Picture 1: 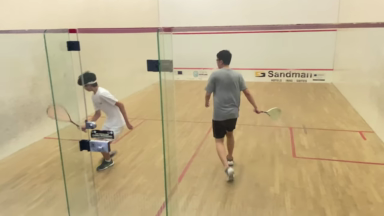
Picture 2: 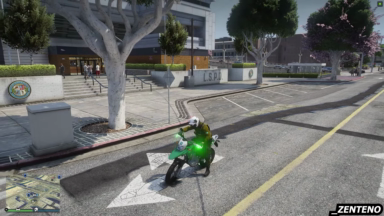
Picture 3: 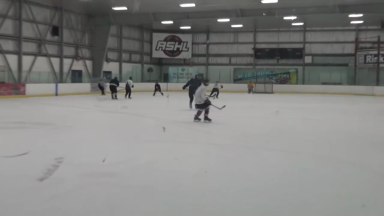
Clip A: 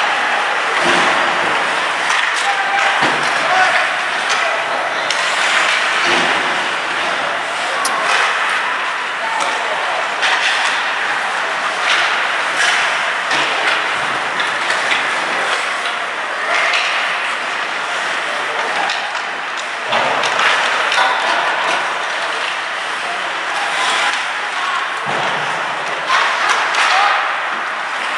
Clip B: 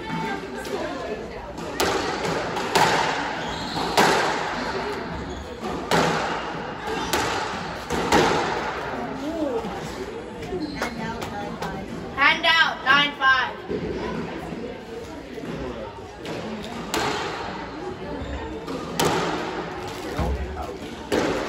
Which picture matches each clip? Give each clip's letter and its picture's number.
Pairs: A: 3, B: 1